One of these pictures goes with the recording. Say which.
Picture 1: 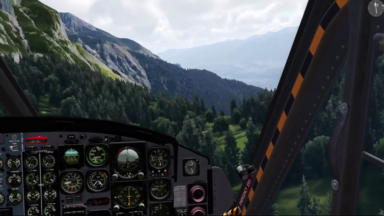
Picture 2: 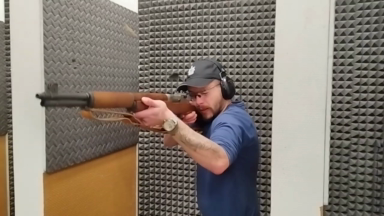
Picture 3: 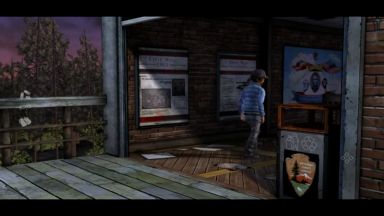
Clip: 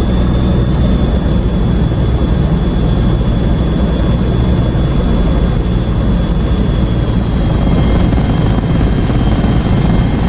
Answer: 1